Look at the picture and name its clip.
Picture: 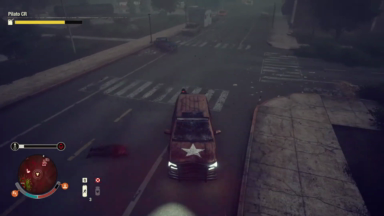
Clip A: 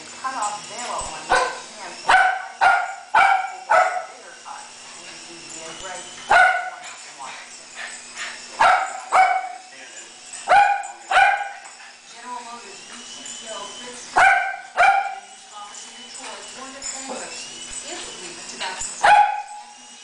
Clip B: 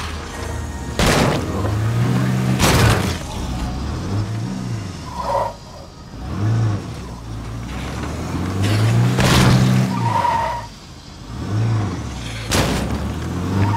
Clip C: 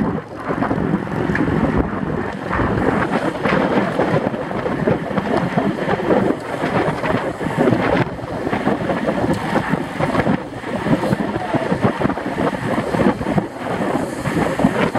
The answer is B